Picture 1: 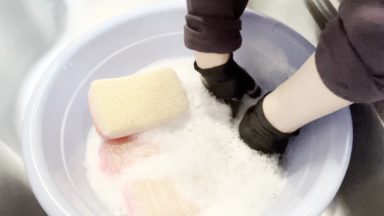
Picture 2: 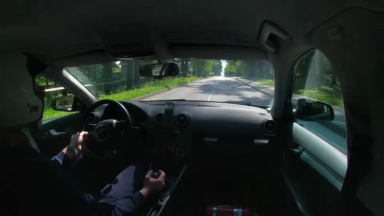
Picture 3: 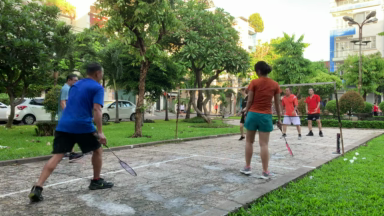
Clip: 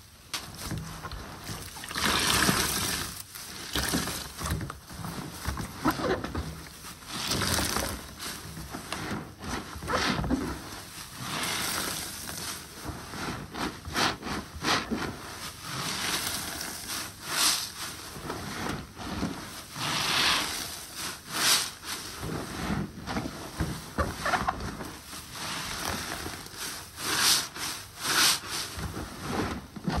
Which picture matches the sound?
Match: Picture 1